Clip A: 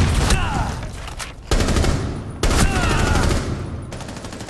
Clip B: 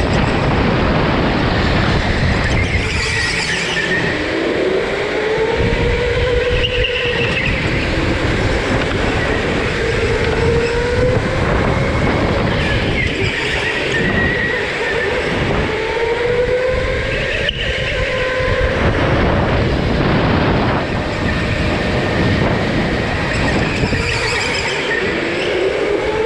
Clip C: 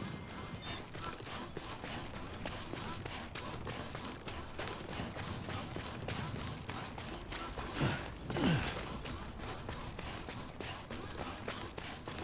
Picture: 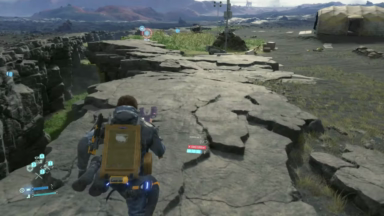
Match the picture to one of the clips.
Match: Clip C